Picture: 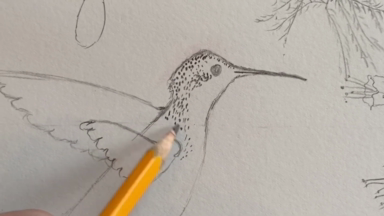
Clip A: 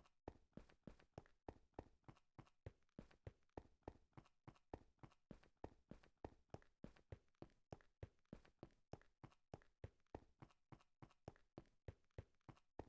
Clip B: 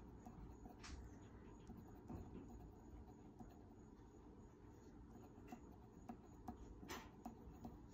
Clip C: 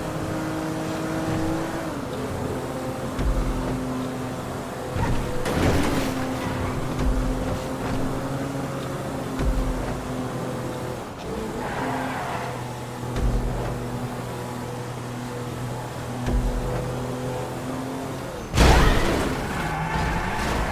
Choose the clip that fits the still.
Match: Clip B